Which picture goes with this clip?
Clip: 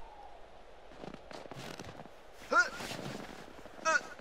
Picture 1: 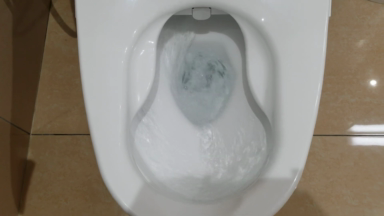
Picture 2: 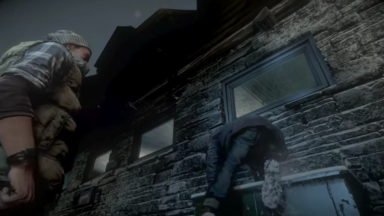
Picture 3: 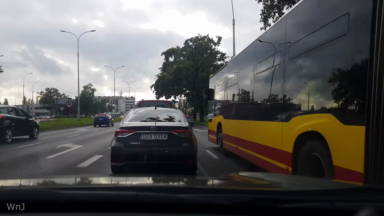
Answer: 2